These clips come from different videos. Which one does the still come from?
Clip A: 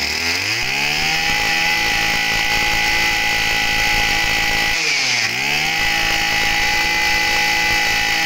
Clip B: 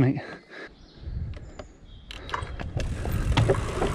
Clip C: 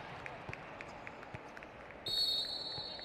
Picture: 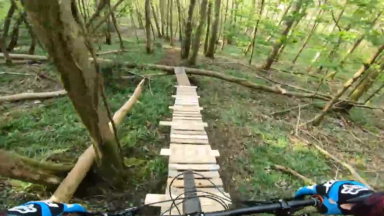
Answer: B